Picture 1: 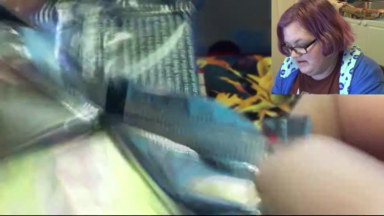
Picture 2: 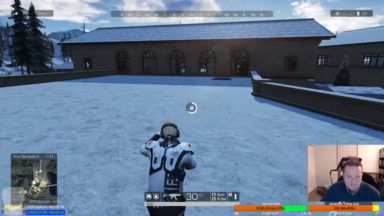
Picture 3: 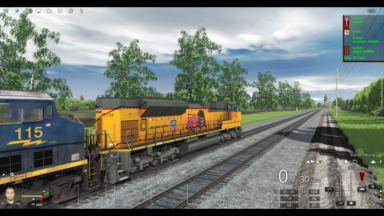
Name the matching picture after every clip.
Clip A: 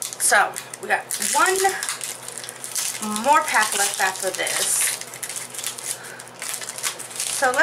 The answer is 1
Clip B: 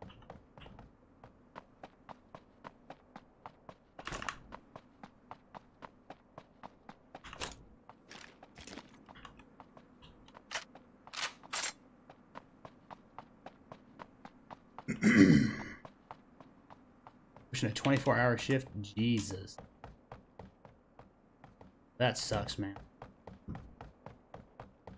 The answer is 2